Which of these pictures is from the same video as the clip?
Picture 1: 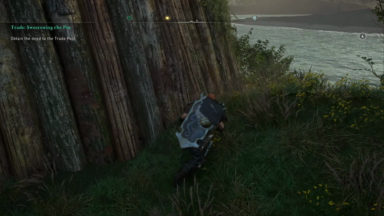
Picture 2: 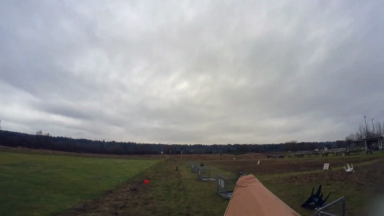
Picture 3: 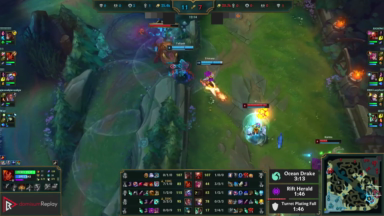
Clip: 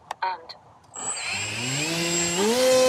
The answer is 2